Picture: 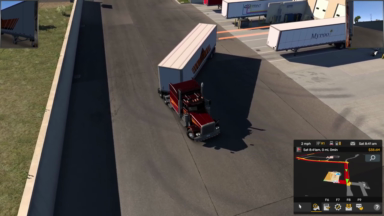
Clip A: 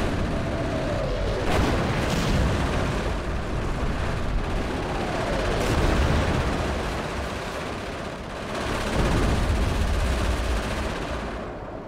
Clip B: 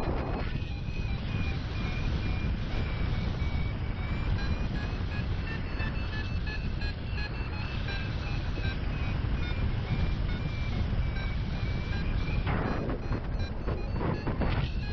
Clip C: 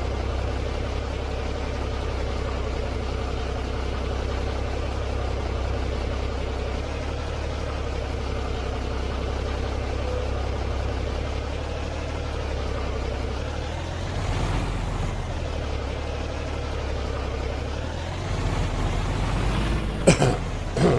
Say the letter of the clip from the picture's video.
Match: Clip C